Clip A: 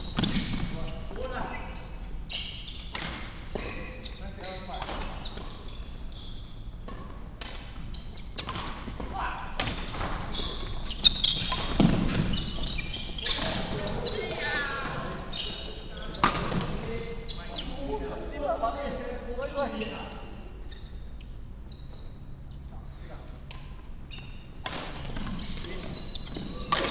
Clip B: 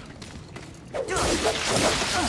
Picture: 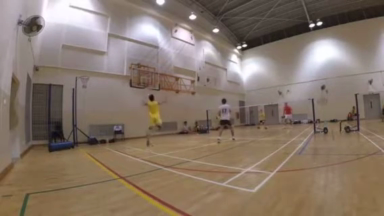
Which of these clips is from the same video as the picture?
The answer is A